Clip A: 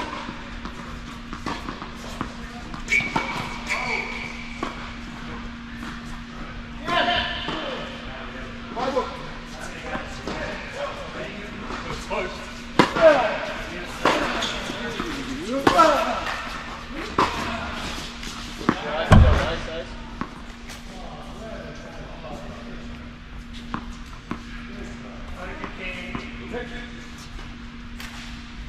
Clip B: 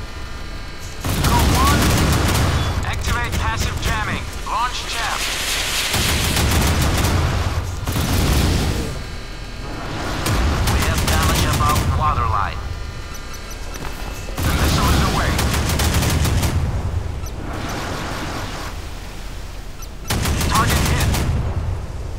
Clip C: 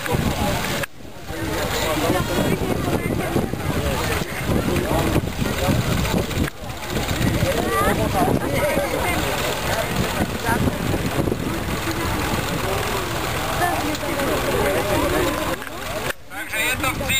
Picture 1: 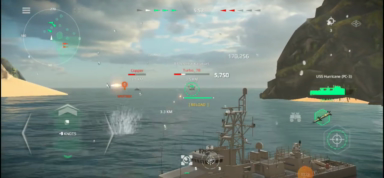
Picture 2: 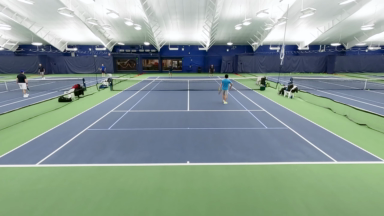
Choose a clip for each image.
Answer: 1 B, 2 A